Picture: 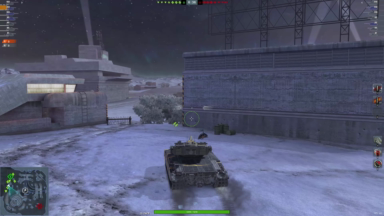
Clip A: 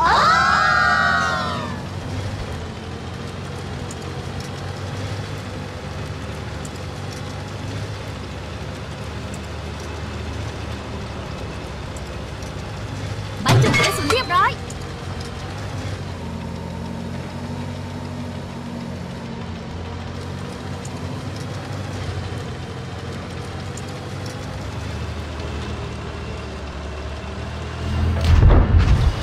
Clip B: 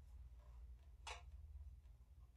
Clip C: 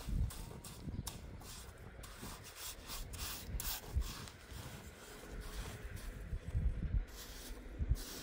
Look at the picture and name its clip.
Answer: A